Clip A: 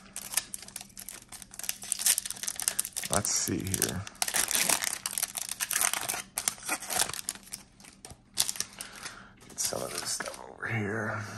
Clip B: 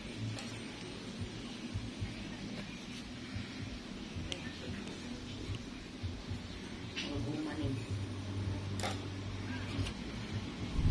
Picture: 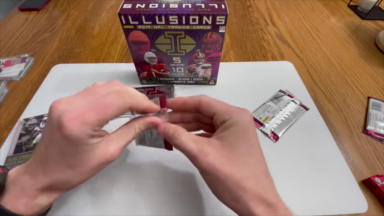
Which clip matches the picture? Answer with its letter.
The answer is A